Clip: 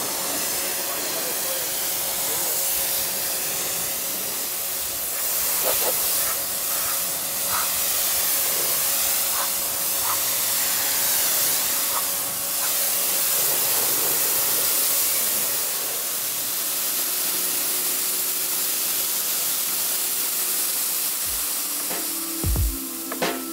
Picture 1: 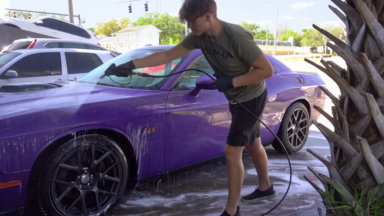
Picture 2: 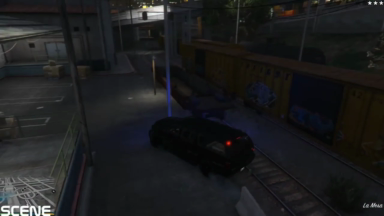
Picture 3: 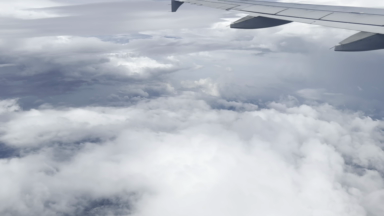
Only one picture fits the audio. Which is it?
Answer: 1